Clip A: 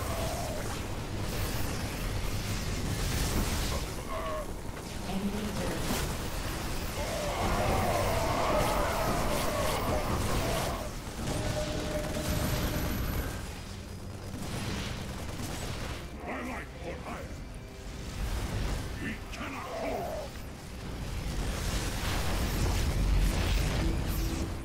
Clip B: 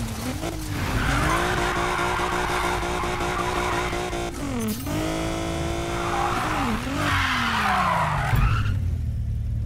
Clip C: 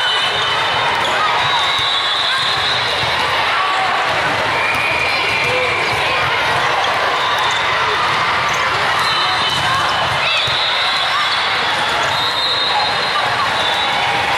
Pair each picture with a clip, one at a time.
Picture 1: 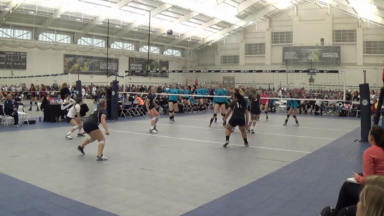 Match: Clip C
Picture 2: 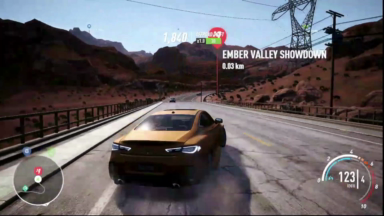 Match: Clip B